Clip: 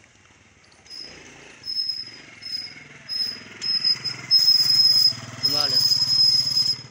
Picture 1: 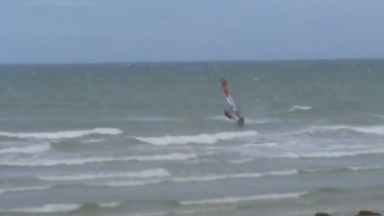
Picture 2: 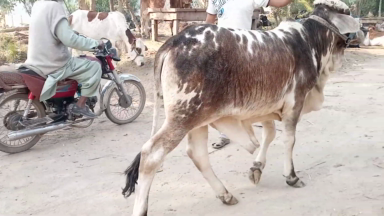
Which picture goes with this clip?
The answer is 2